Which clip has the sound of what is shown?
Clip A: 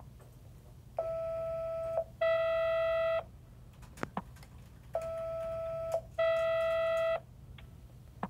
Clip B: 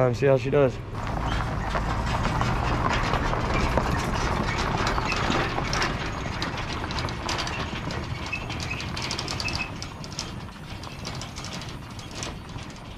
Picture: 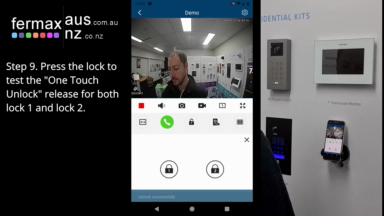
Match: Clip A